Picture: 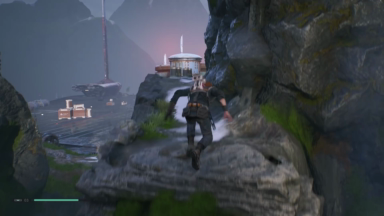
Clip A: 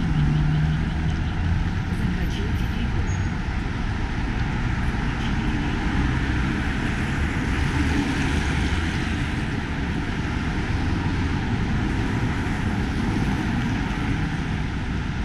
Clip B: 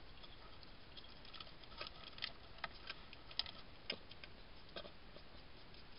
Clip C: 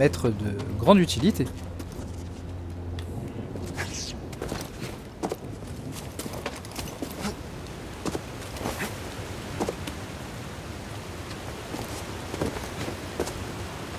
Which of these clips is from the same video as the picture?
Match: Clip C